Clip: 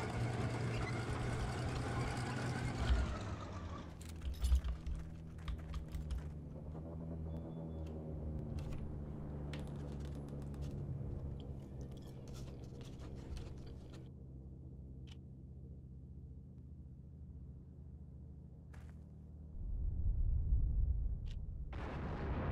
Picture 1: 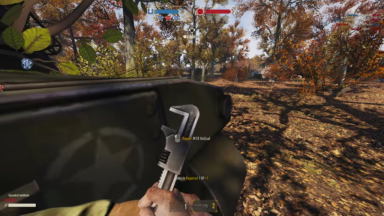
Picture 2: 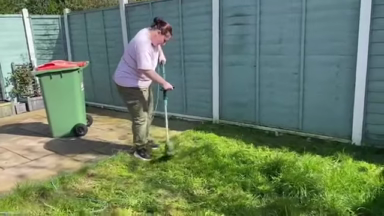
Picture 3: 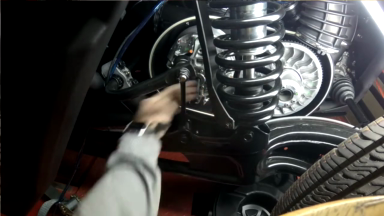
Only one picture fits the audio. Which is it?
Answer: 1